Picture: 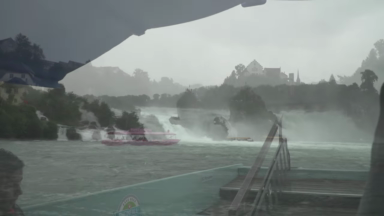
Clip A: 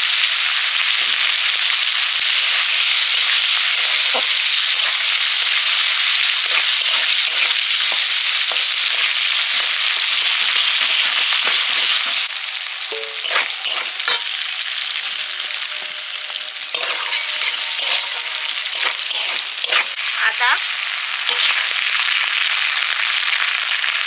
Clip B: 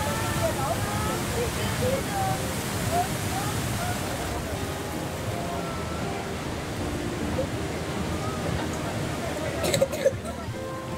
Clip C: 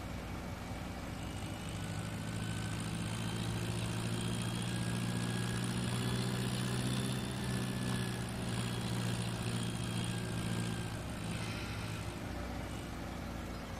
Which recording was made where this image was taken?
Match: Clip B